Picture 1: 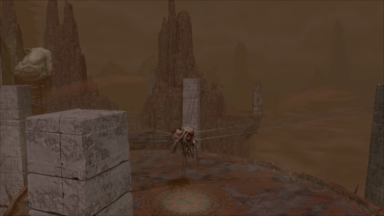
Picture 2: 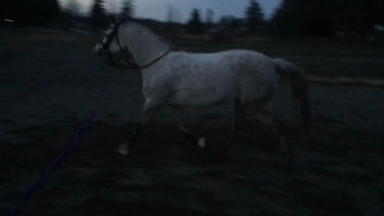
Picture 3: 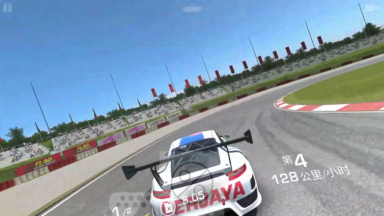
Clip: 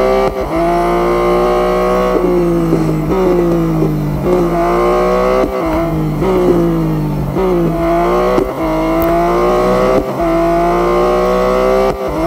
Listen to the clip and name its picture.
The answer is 3